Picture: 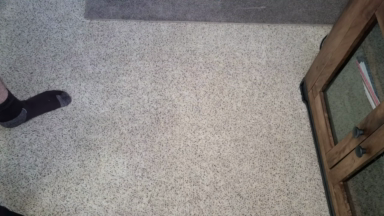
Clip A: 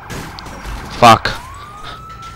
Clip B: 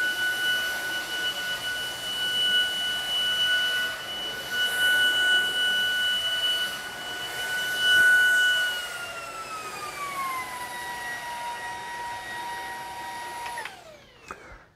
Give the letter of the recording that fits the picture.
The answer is B